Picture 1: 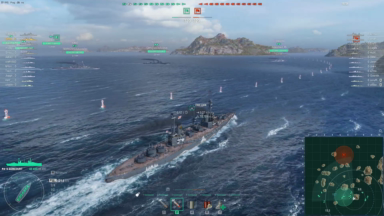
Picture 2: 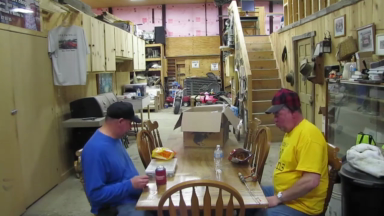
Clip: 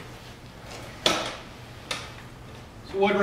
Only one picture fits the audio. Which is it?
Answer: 2